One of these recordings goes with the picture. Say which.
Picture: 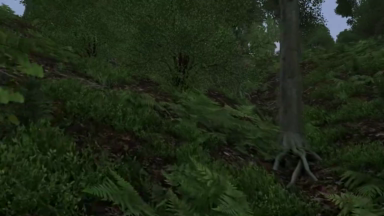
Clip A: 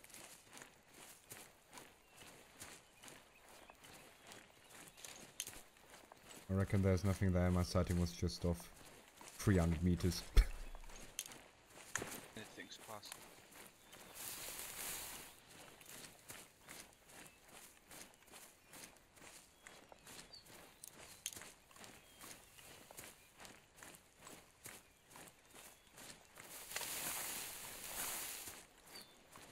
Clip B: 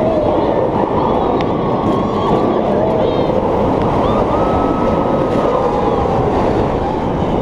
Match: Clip A